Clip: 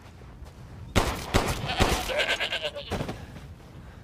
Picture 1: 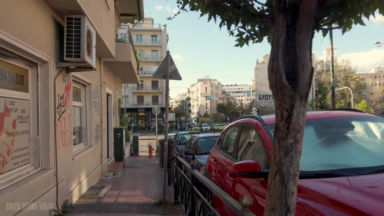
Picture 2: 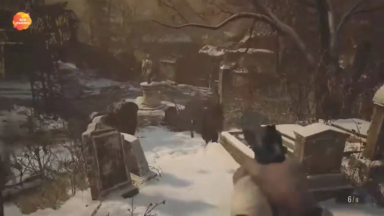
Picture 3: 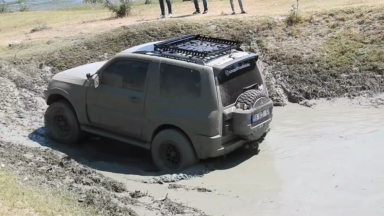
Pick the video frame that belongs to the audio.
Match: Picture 2